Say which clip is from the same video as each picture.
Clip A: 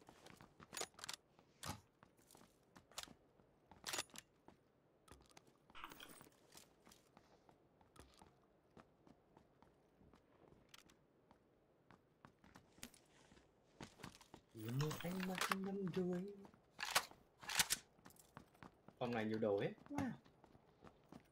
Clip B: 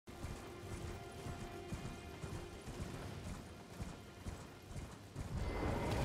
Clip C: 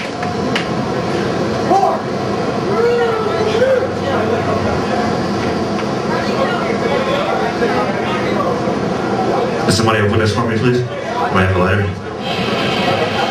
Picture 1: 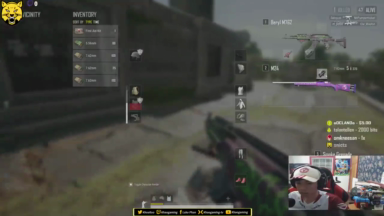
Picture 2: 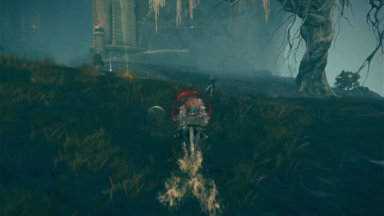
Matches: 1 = A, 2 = B